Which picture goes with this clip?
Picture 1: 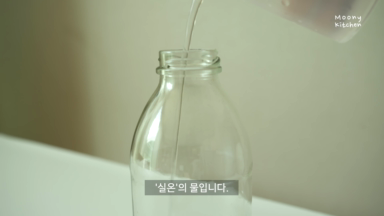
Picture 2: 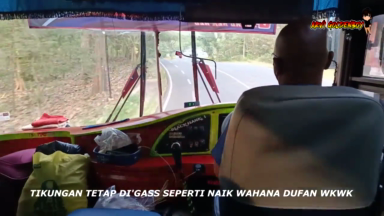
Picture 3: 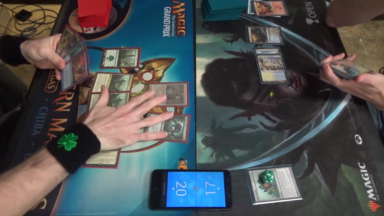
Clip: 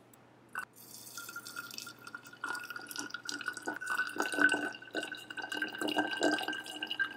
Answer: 1